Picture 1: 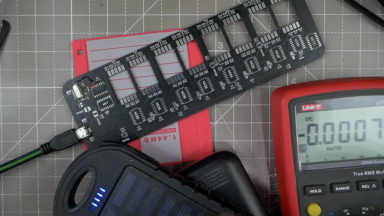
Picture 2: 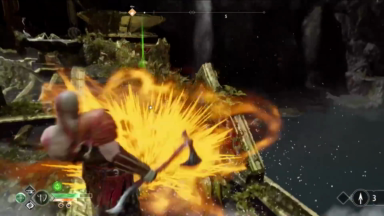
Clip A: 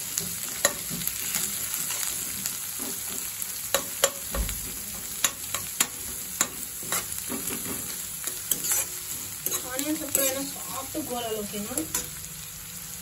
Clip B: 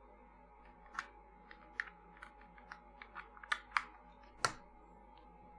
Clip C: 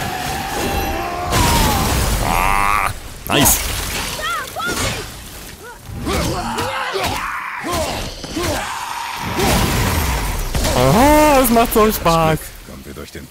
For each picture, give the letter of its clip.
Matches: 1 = B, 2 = C